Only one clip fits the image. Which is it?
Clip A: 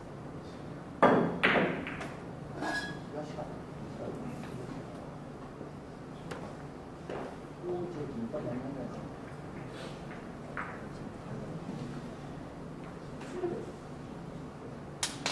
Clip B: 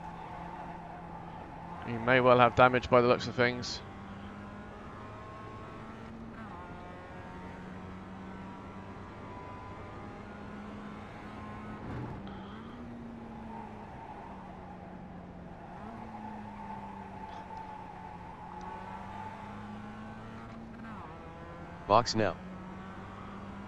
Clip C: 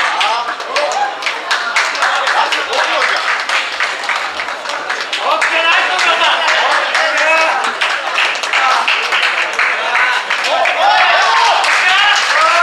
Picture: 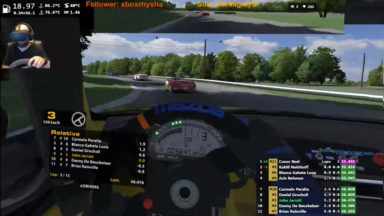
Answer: B